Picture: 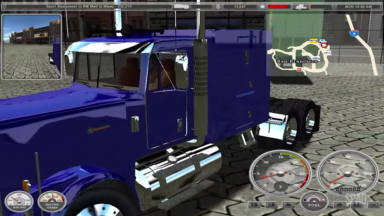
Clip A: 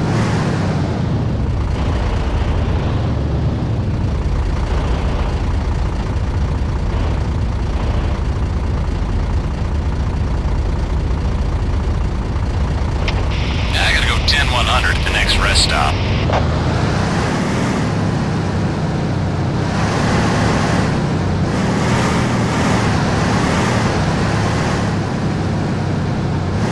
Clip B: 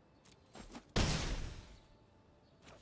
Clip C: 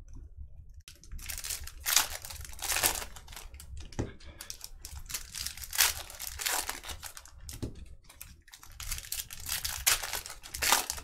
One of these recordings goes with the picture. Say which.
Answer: A